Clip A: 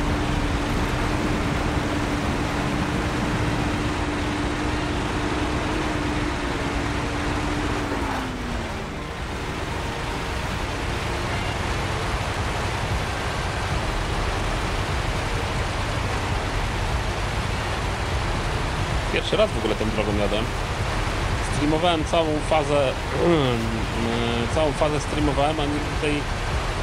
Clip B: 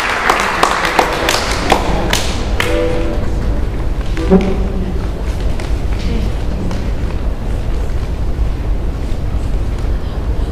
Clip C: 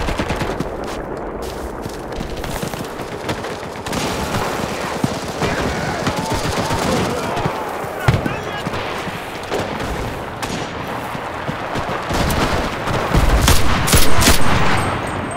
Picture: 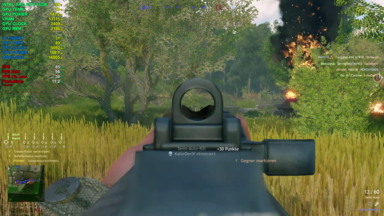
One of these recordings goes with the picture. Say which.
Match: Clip C